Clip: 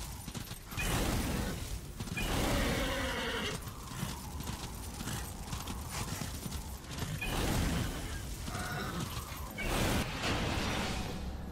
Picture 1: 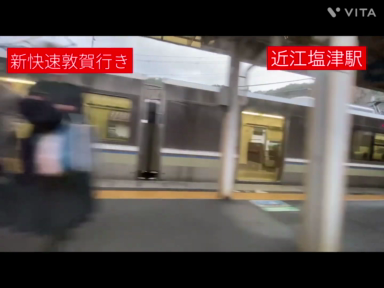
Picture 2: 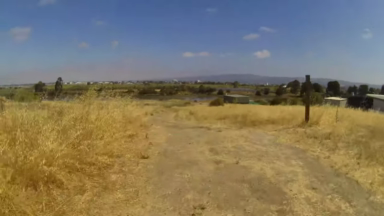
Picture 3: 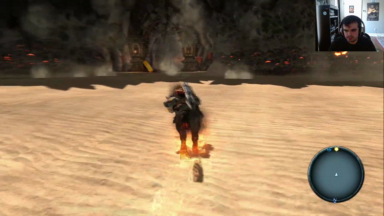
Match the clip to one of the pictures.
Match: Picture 3